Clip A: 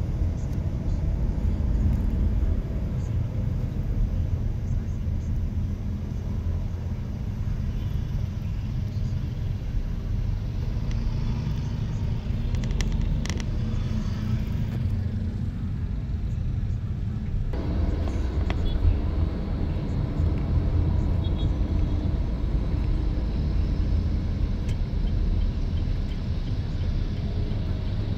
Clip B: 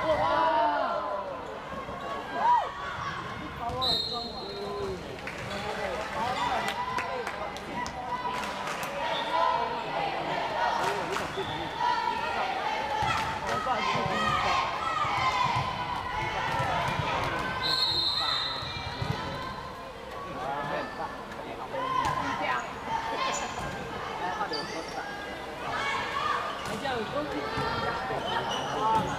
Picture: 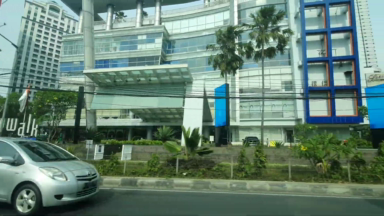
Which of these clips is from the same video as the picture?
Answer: A